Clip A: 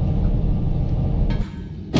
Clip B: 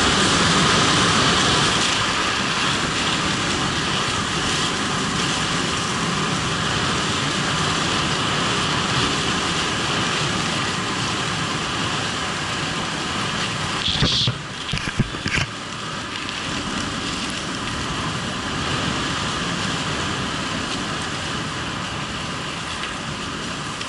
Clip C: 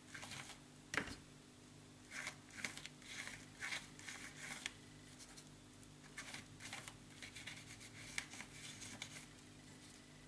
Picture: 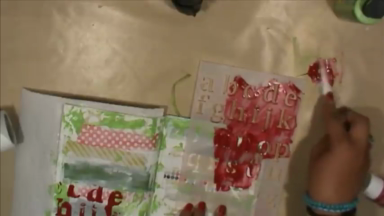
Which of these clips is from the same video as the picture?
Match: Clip C